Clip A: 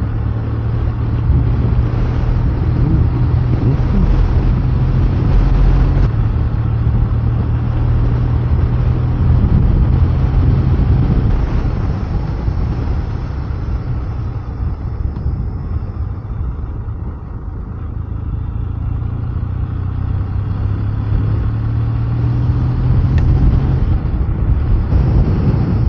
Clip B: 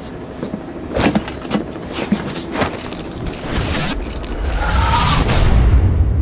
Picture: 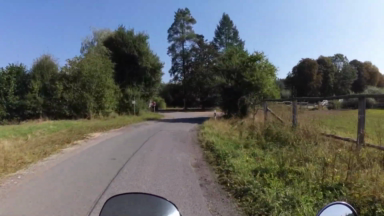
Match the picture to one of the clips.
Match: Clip A